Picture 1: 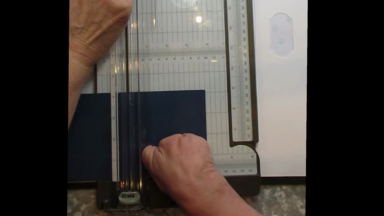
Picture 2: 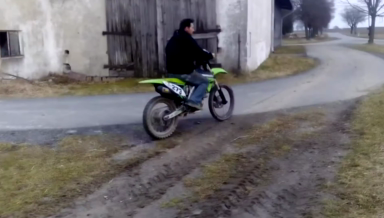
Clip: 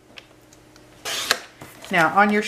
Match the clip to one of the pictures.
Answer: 1